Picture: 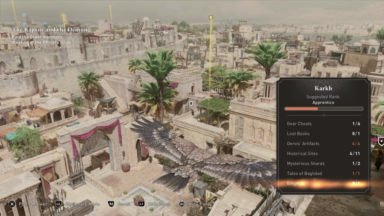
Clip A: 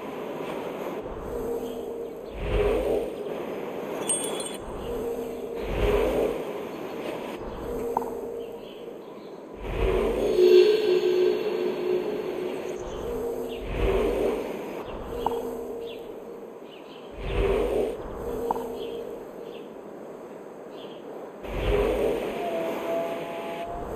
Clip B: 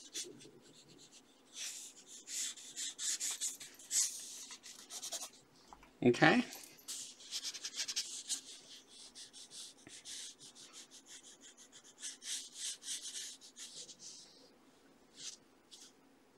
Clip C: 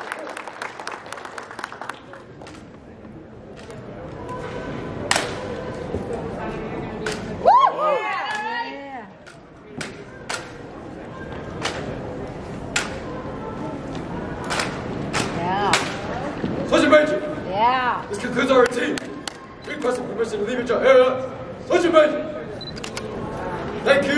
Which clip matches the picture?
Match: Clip A